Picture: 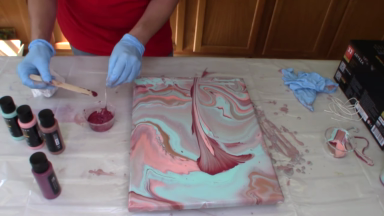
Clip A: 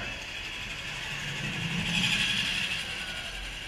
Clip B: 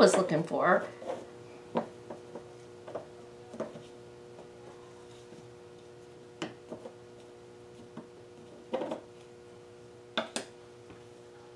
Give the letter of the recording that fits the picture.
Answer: B